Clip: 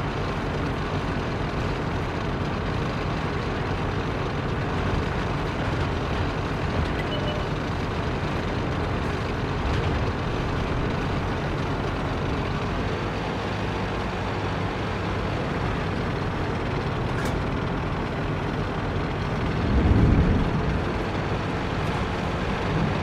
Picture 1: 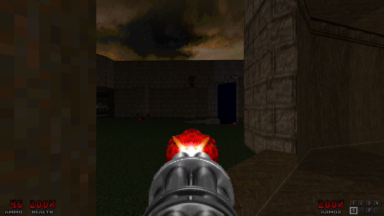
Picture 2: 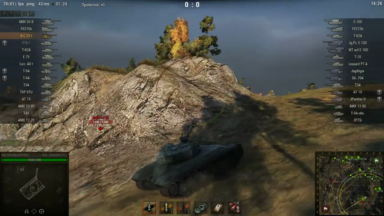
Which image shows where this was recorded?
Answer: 2